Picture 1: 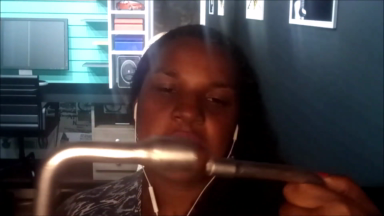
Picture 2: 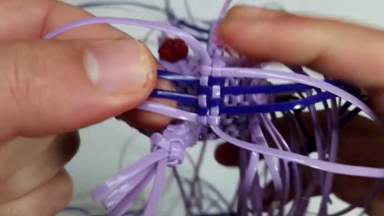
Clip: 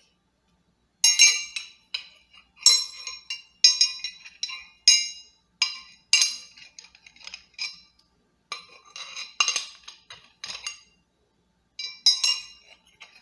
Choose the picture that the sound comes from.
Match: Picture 1